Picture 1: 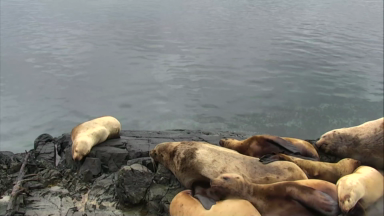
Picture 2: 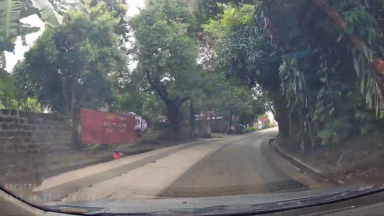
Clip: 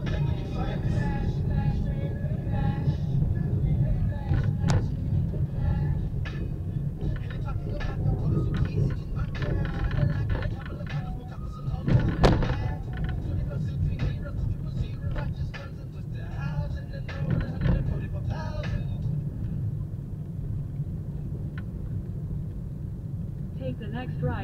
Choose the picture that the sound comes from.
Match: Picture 2